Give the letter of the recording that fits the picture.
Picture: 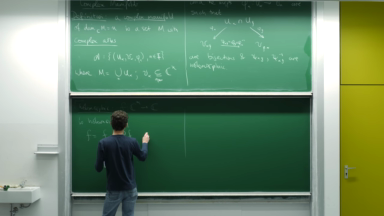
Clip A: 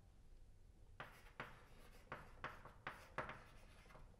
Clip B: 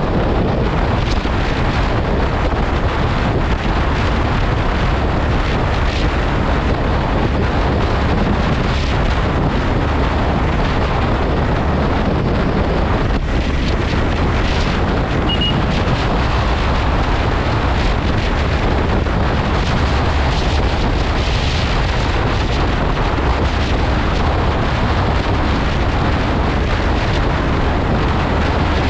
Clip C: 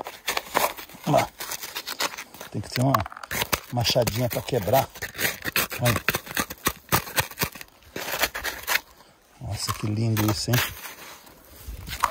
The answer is A